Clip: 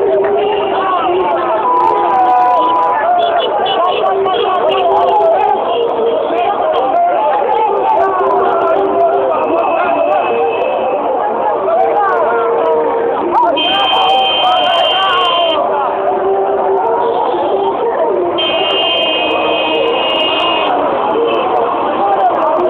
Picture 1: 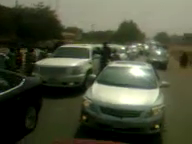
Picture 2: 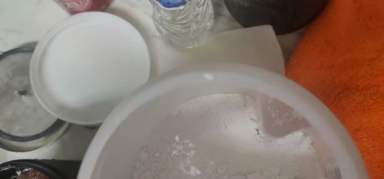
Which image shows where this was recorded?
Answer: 1